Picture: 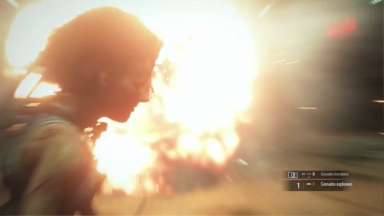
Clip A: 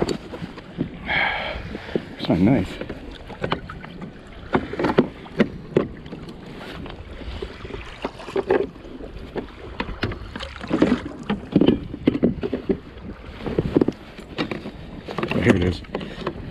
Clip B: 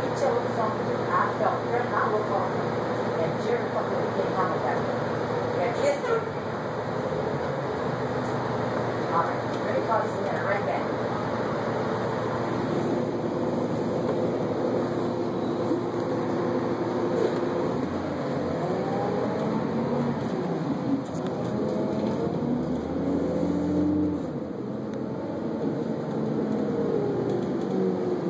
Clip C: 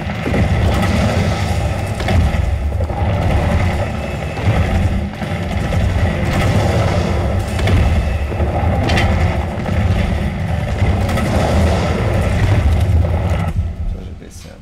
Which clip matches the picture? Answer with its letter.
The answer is C